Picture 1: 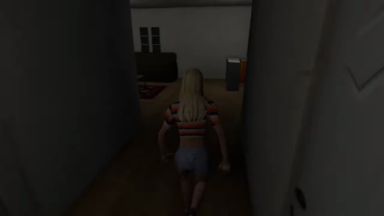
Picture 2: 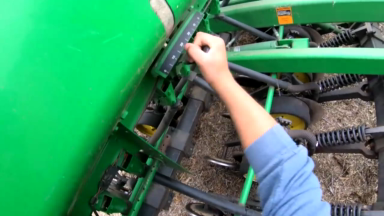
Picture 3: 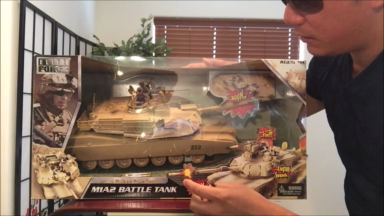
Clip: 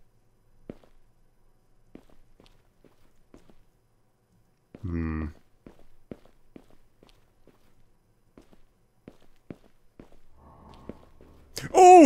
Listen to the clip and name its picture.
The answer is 1